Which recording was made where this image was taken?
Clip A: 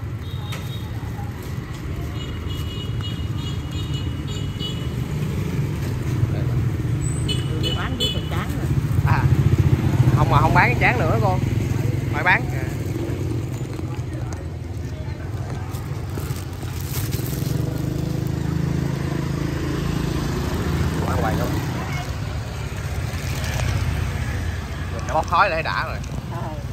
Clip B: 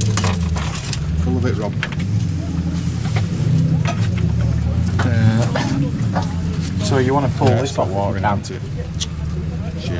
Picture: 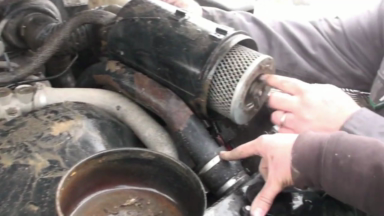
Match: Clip B